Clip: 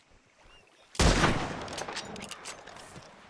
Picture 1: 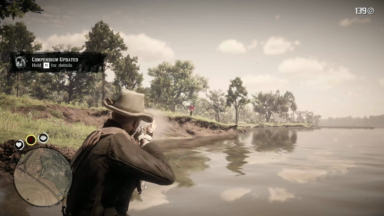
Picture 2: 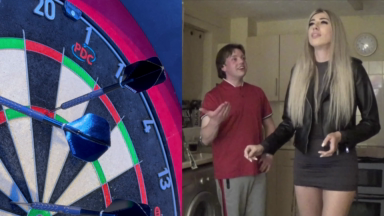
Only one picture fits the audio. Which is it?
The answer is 1